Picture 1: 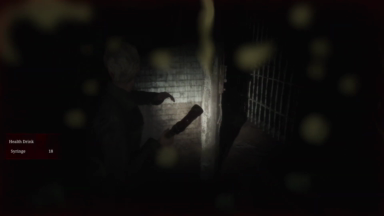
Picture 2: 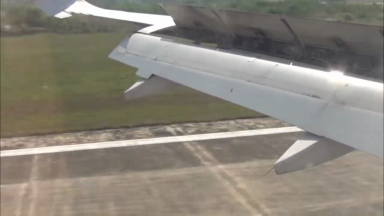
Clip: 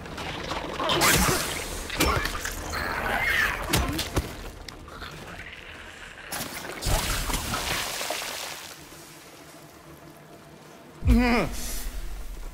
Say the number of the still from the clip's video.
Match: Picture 1